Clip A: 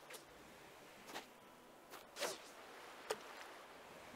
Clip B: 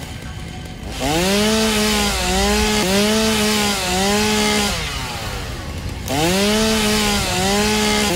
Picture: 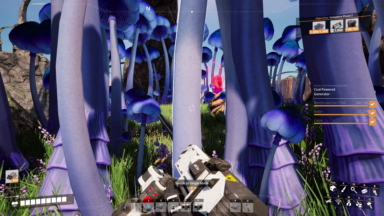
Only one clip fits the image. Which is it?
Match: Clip B